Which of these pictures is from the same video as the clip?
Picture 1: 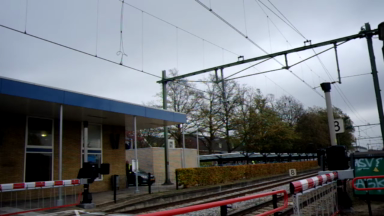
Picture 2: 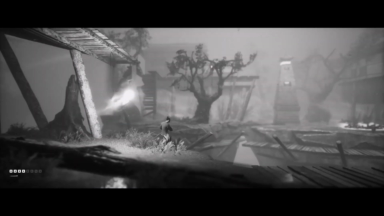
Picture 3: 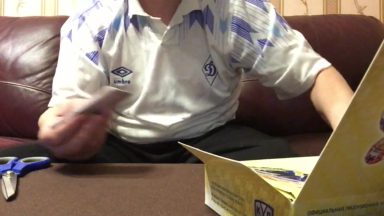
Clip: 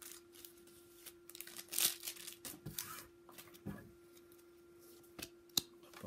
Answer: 3